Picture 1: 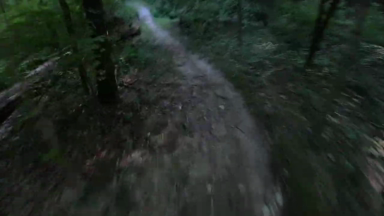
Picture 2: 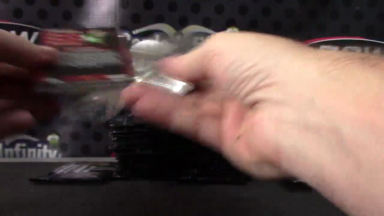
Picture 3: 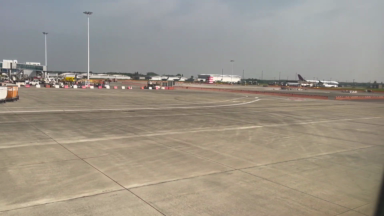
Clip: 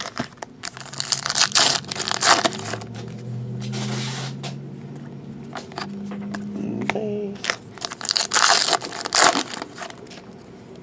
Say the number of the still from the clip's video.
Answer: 2